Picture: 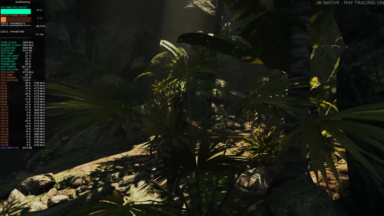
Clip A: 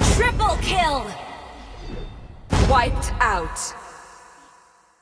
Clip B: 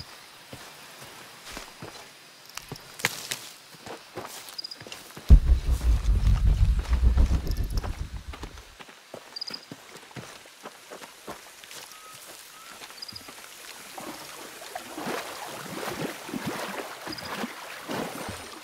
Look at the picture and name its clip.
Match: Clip B